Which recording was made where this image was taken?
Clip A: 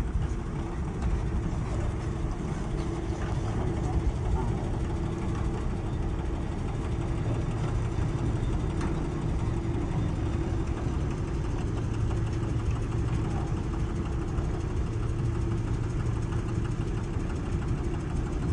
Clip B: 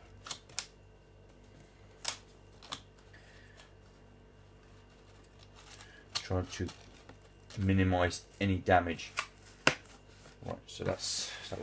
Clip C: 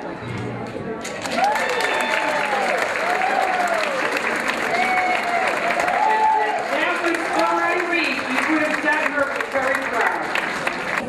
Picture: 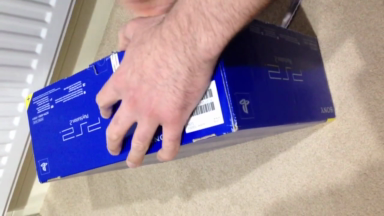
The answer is B